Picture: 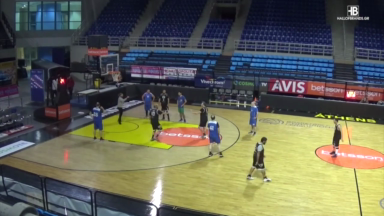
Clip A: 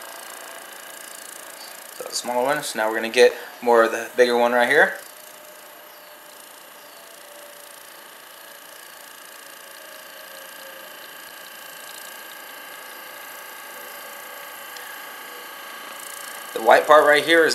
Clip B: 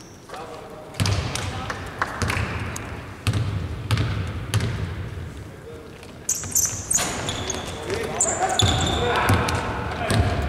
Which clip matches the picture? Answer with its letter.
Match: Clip B